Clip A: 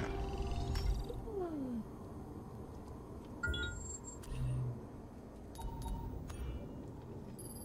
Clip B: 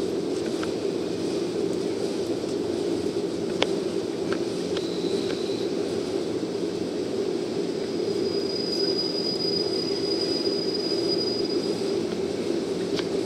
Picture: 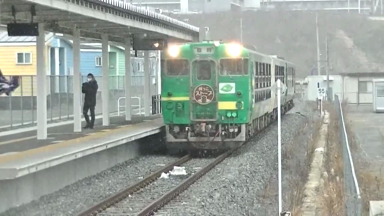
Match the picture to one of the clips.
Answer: B